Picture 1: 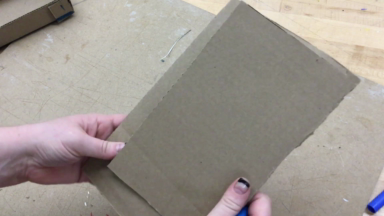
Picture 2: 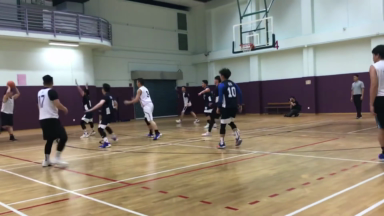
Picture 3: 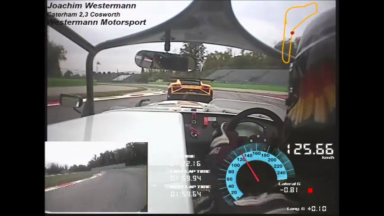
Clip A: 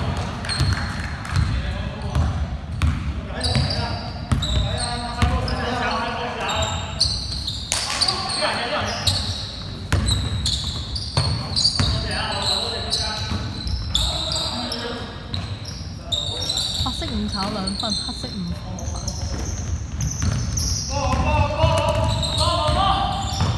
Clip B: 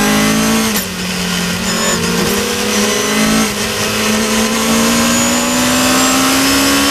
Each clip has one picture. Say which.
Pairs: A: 2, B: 3